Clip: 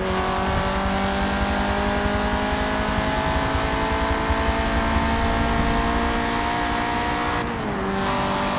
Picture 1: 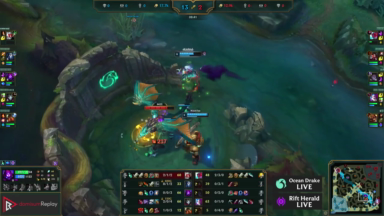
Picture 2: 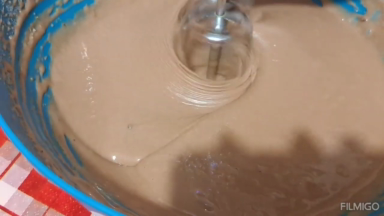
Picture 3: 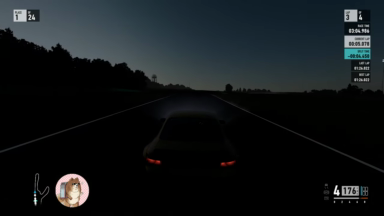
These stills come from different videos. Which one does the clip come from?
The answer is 3